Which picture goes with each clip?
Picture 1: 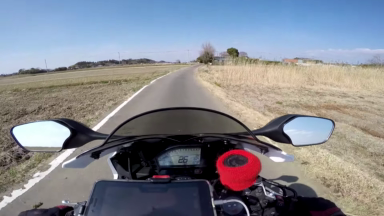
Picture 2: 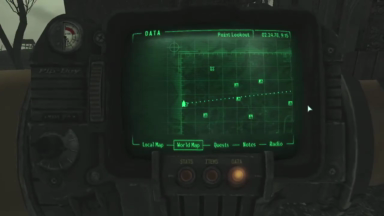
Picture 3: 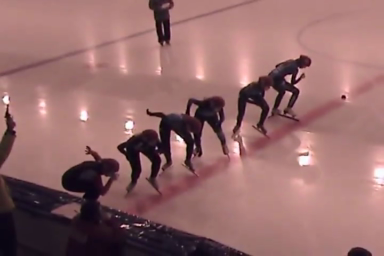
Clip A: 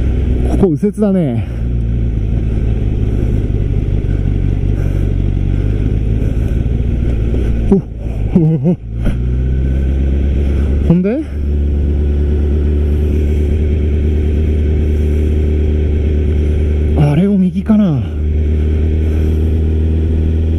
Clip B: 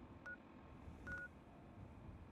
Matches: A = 1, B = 2